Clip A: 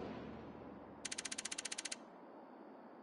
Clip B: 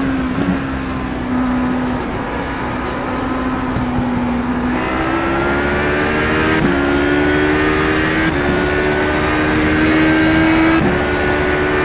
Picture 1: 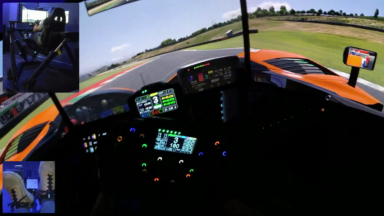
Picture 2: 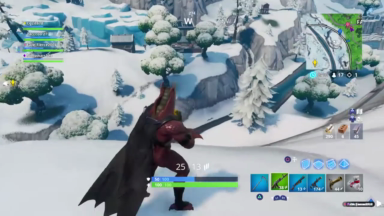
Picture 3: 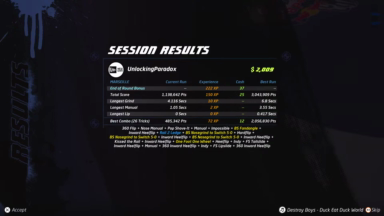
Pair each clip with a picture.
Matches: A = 3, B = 1